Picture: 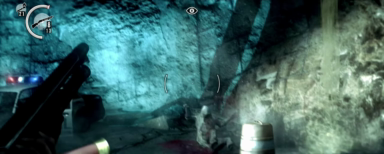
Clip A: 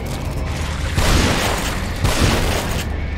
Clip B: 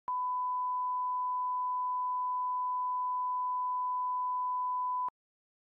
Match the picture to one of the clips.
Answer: A